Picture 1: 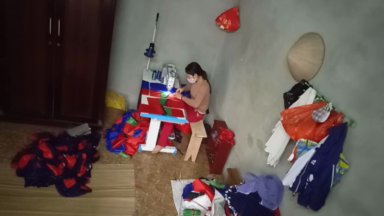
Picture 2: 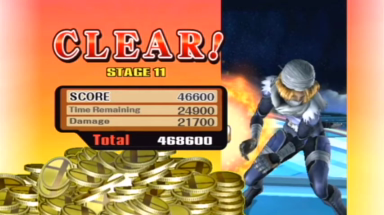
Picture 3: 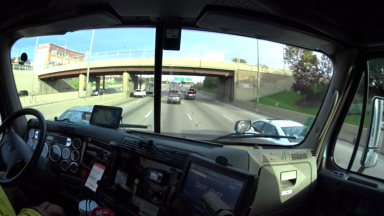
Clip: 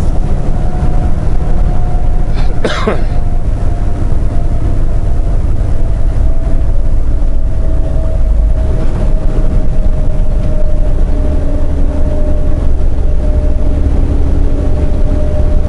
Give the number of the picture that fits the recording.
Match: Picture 3